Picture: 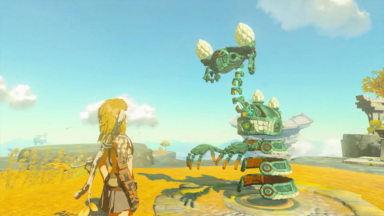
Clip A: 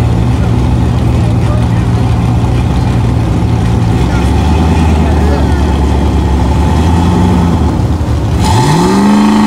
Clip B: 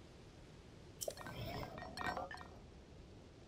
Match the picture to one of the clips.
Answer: B